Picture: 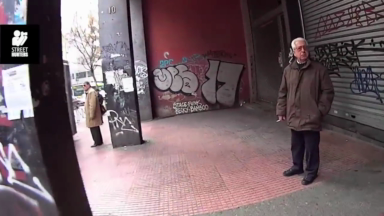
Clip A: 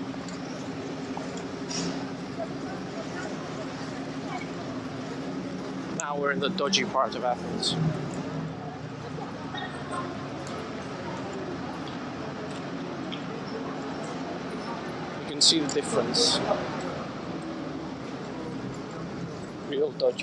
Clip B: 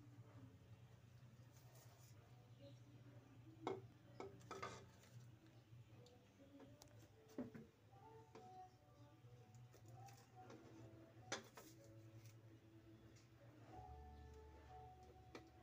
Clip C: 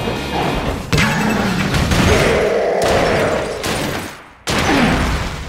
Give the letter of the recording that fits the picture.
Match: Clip A